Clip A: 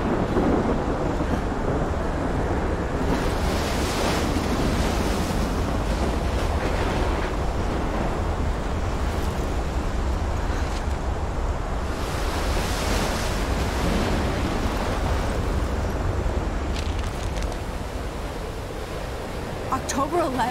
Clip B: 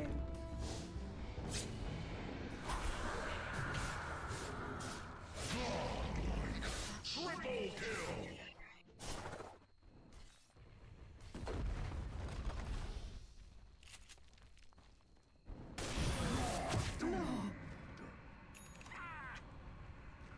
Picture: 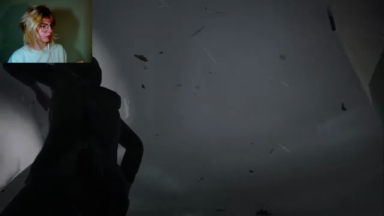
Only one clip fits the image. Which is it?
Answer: A